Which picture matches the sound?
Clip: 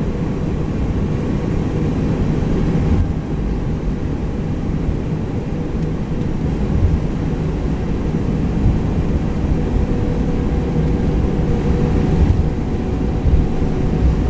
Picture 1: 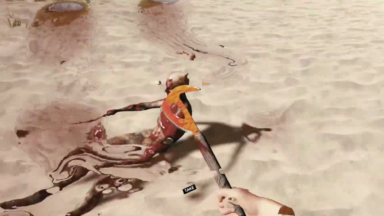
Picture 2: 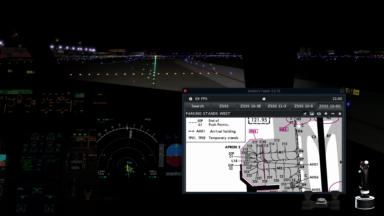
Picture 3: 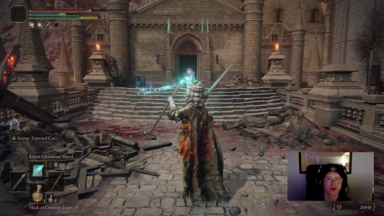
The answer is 2